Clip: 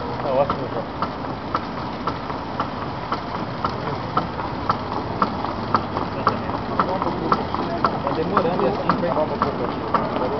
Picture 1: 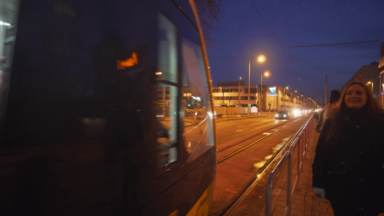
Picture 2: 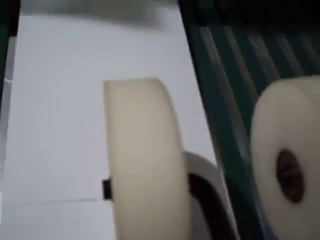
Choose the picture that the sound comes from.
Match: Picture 2